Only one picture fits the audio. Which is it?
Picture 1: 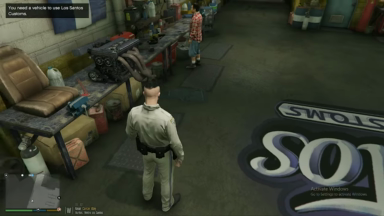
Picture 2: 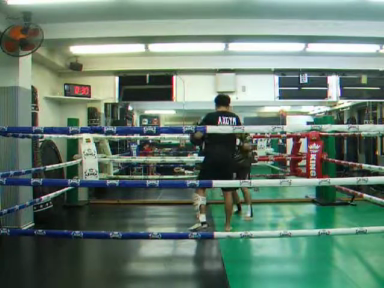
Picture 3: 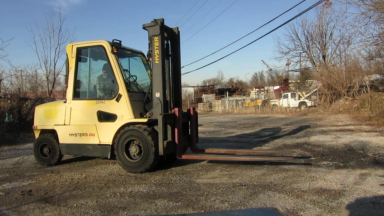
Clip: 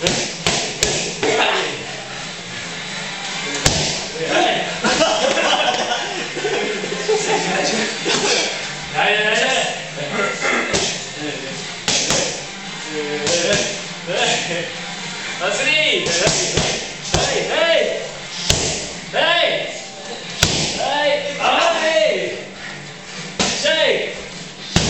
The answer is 2